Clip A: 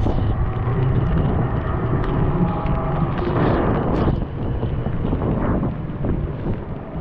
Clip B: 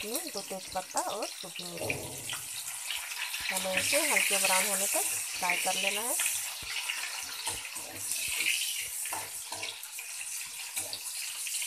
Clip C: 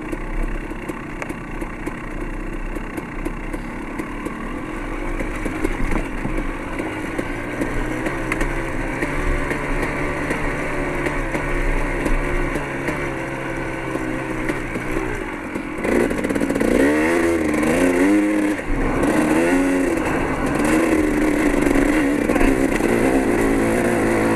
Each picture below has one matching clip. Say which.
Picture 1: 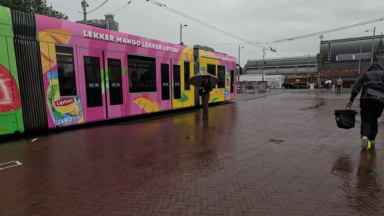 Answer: A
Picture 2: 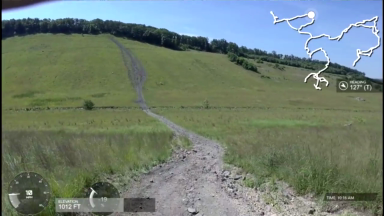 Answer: C